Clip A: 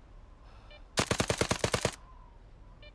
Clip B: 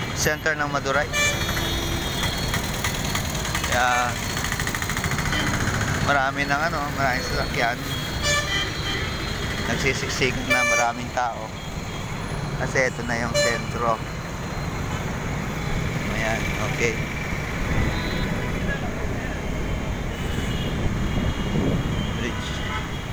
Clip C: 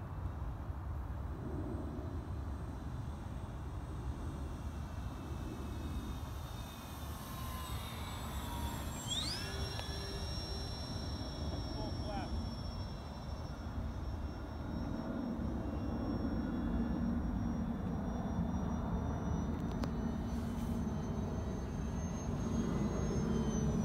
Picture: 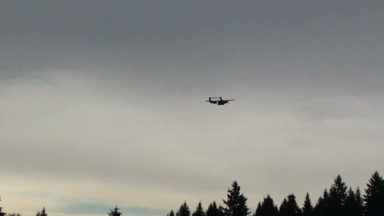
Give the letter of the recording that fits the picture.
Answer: C